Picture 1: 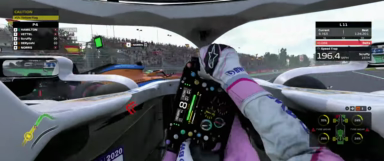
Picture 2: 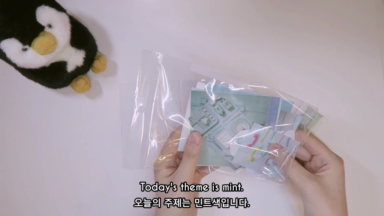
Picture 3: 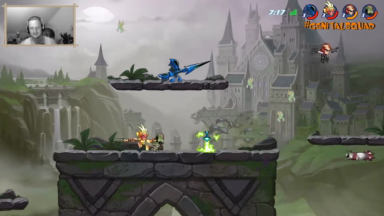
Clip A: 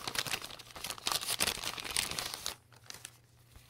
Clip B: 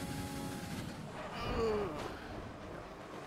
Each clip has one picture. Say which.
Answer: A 2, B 1